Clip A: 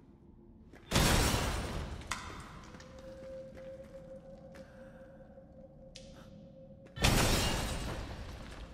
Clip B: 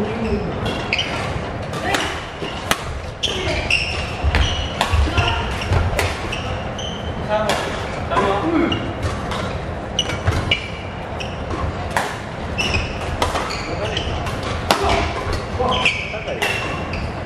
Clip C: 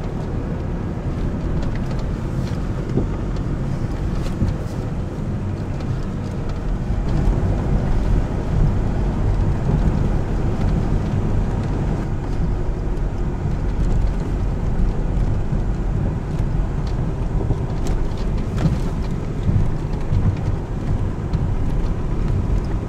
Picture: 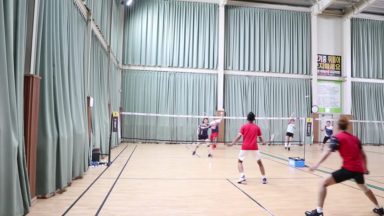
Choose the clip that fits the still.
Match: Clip B